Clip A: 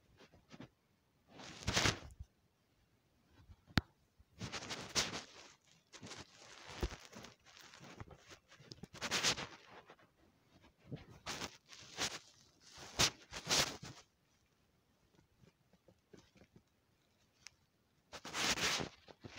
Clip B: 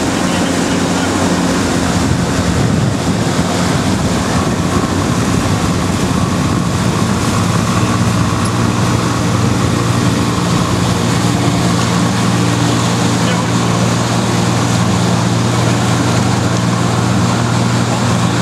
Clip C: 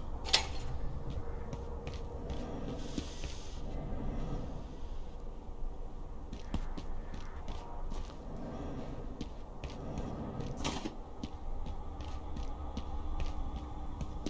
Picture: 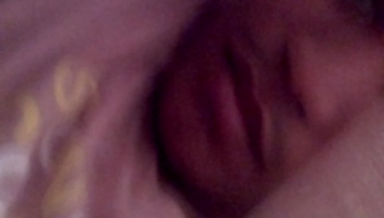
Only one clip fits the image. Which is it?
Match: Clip A